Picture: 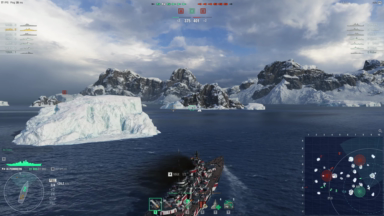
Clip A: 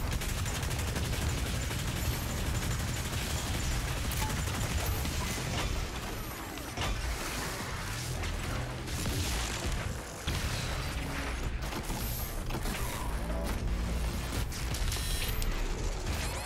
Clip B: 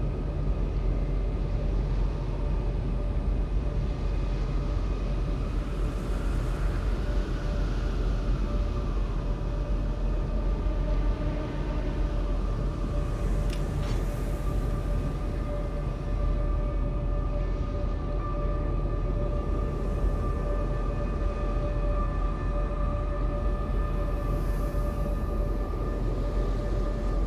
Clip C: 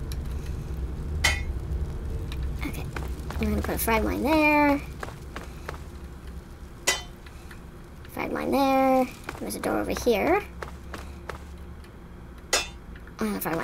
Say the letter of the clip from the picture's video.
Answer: B